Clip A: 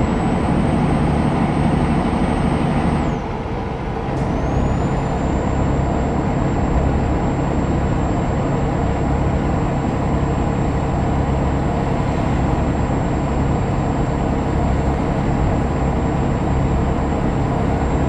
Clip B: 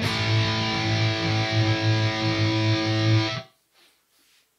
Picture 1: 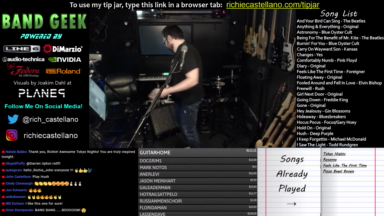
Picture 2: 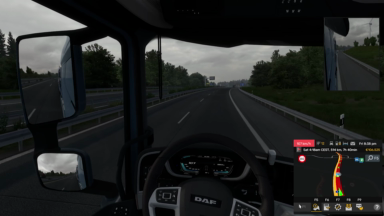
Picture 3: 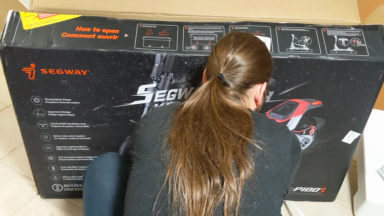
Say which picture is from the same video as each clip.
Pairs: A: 2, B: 1